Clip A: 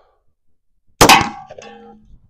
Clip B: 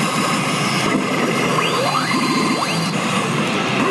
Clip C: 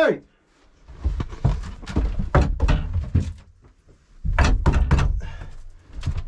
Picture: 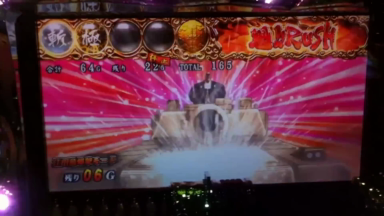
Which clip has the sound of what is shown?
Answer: B